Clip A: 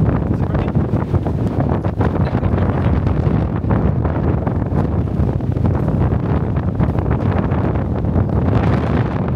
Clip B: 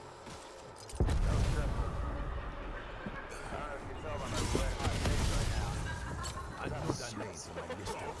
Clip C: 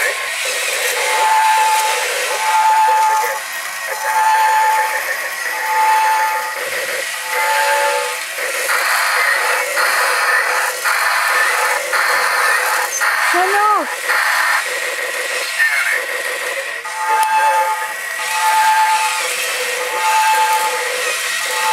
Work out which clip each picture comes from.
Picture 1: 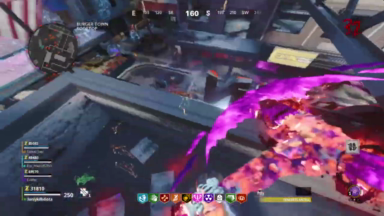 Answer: B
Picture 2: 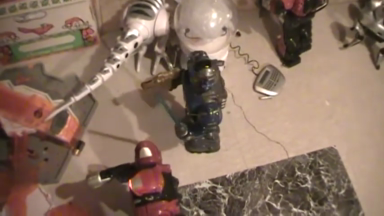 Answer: C